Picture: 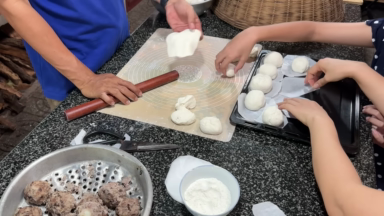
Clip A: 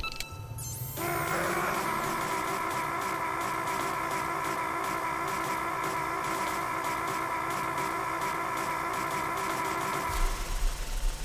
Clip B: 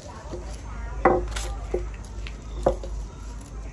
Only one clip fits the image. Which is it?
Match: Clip B